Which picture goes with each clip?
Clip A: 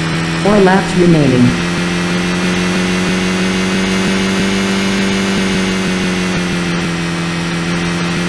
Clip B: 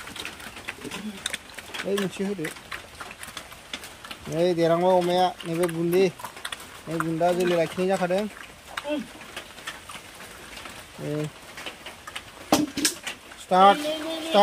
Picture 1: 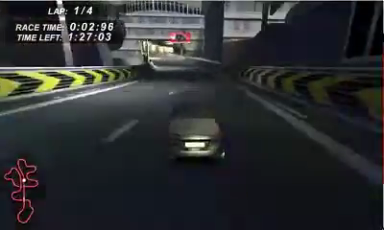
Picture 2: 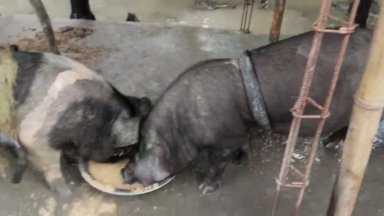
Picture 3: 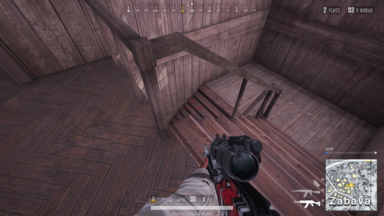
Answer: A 1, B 2